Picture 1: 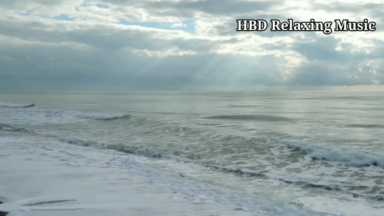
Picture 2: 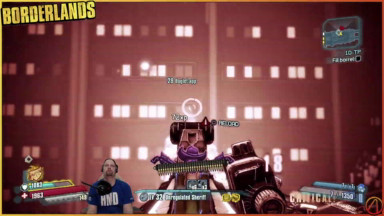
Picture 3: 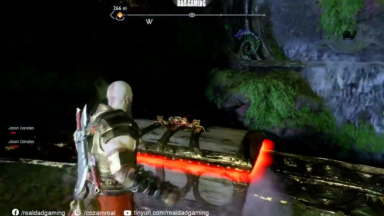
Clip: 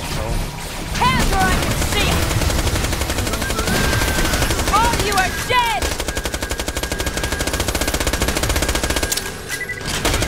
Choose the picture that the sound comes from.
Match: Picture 2